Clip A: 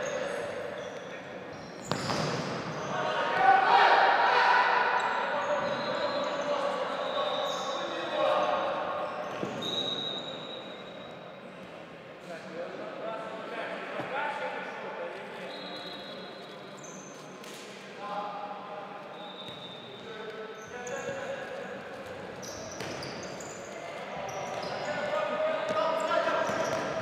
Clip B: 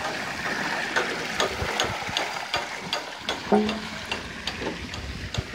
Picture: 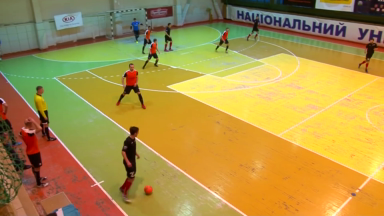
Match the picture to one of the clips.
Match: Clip A